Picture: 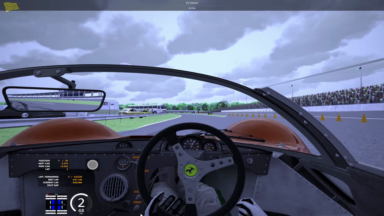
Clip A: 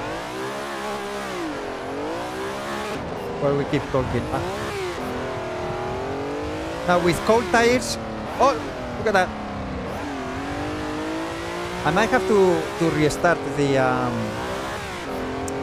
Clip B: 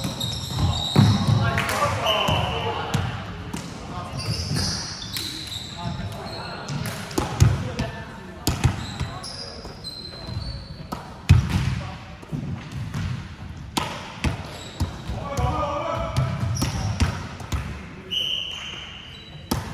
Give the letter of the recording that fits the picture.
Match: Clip A